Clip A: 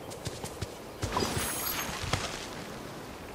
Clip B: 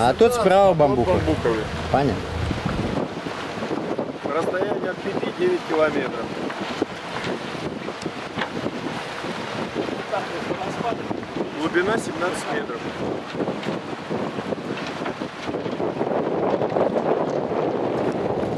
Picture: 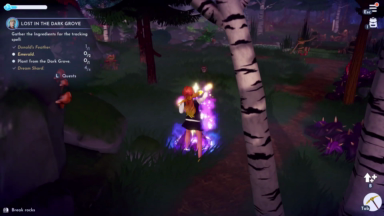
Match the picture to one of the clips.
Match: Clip A